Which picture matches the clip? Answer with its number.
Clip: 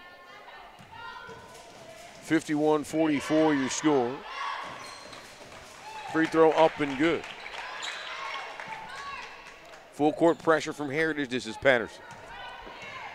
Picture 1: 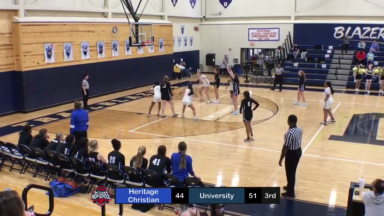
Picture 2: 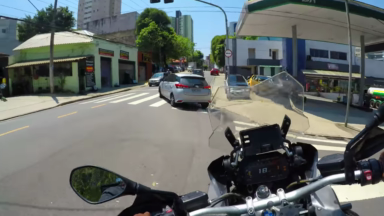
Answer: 1